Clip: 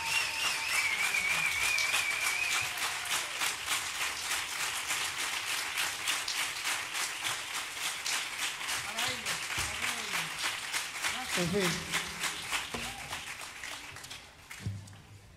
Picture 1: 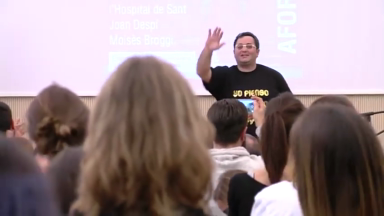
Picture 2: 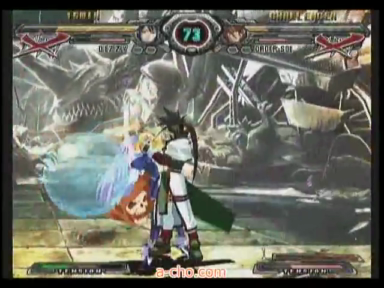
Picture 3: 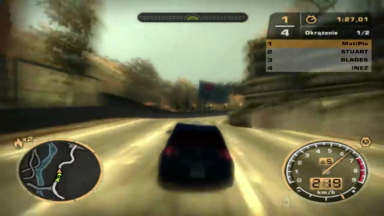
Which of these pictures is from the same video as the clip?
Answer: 1